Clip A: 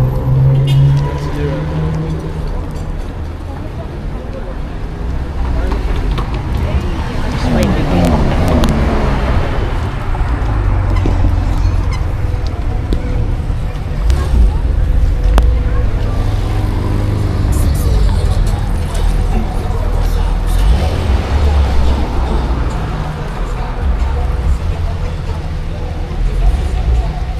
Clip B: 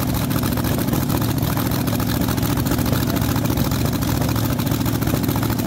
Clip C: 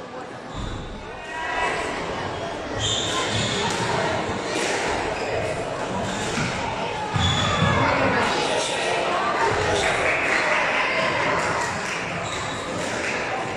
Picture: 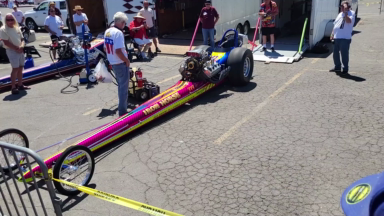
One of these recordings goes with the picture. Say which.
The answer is B